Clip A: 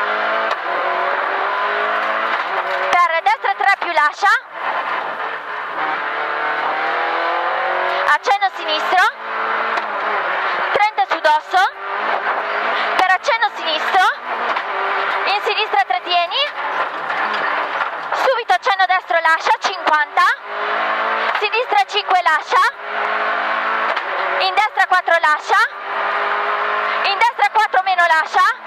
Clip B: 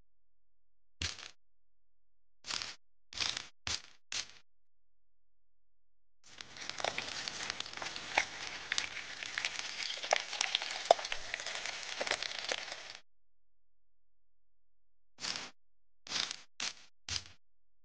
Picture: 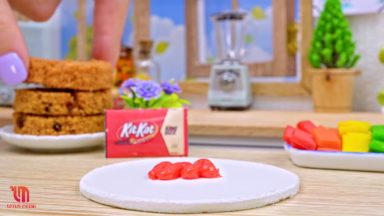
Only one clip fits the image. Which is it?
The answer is B